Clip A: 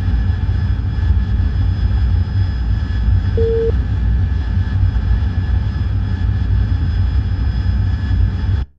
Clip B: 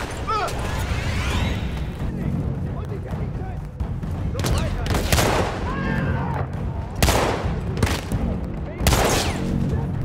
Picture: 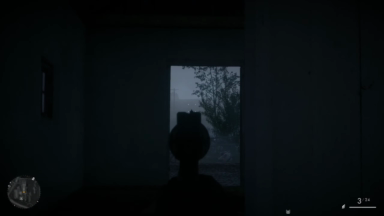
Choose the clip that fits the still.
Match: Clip B